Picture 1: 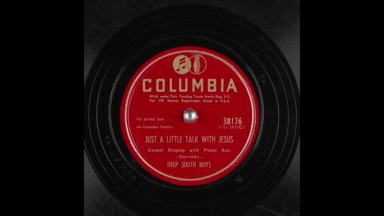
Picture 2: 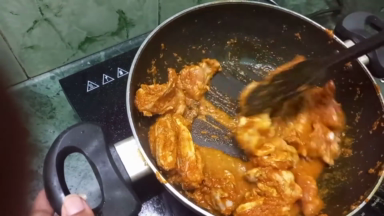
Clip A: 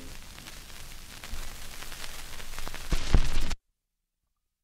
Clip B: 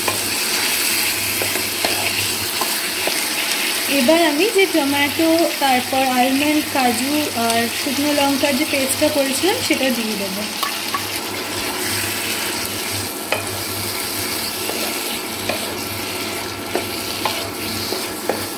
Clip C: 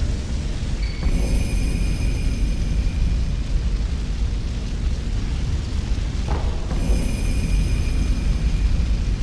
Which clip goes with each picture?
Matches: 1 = A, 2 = B